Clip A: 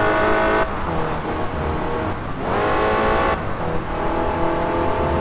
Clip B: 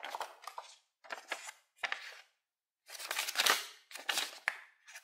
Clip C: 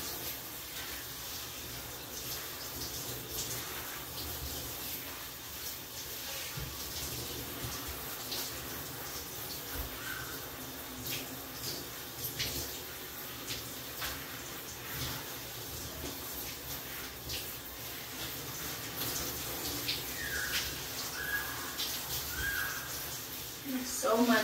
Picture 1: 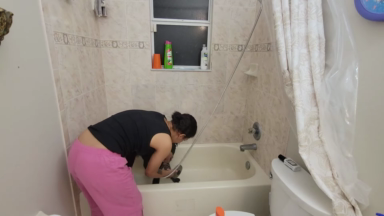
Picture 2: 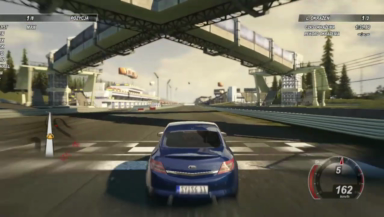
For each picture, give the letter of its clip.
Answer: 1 C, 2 A